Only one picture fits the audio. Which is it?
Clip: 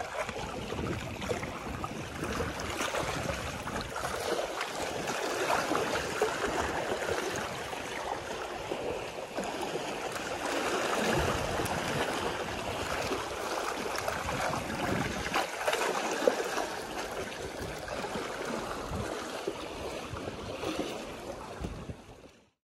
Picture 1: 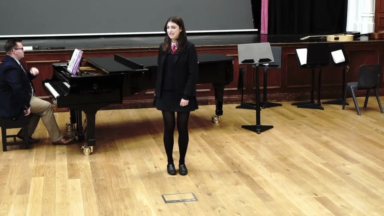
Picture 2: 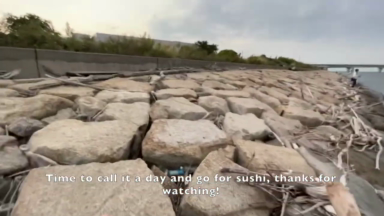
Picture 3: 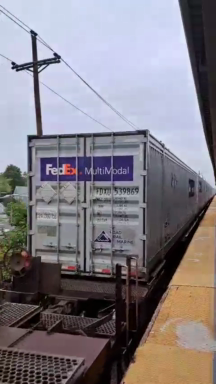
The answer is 2